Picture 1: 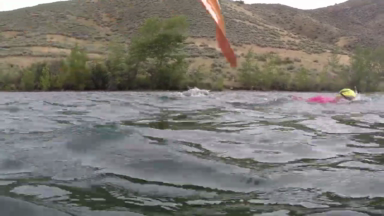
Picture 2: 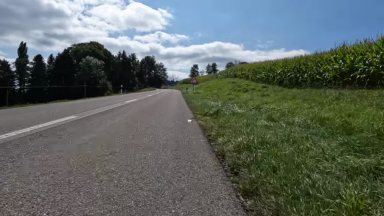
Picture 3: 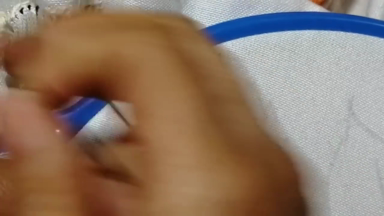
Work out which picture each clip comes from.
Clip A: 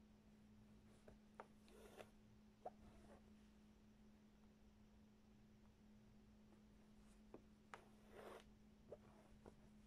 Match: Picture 3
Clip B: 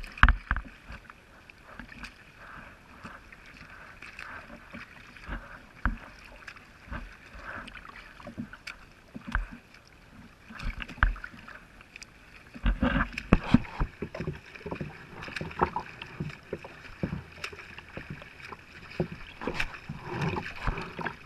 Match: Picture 1